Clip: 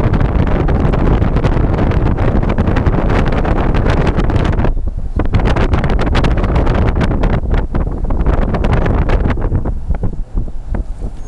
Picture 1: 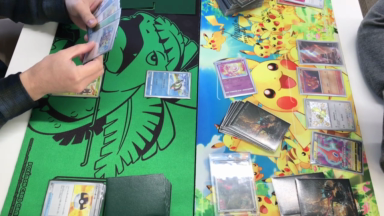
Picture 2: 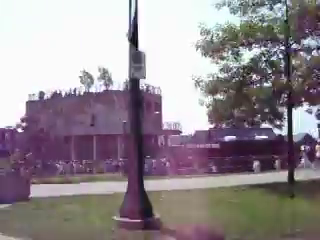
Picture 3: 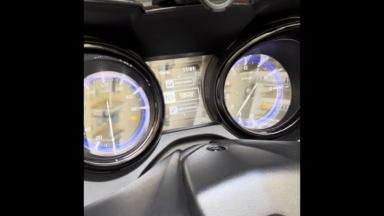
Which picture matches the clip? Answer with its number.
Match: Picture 2